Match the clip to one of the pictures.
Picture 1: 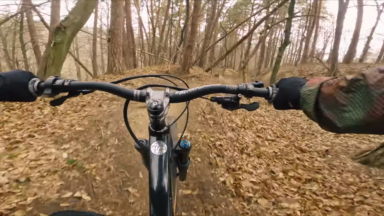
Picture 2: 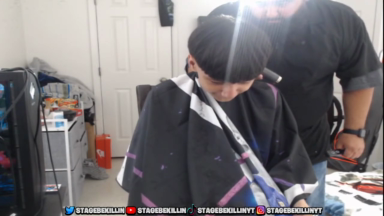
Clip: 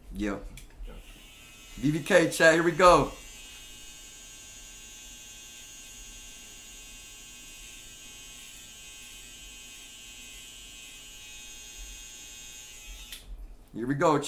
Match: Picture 2